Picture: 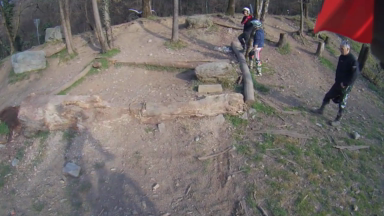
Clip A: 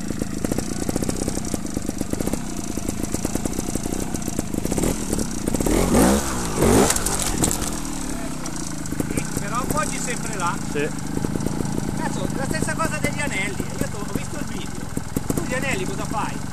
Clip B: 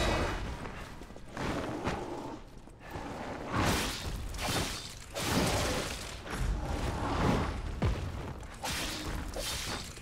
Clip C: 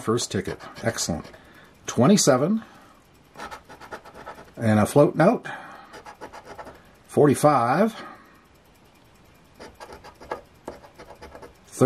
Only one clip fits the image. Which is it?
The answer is A